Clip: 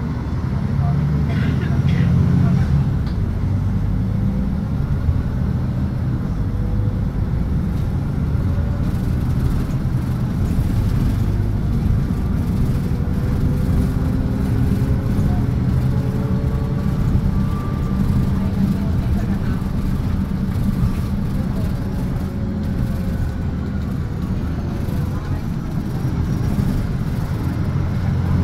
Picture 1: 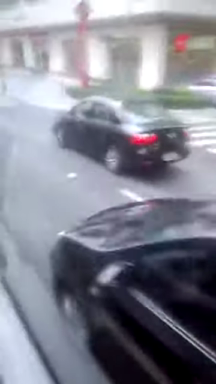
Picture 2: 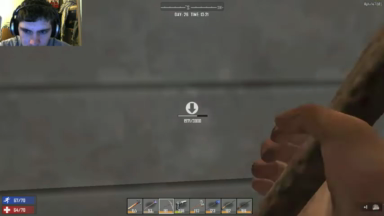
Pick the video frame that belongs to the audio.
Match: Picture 1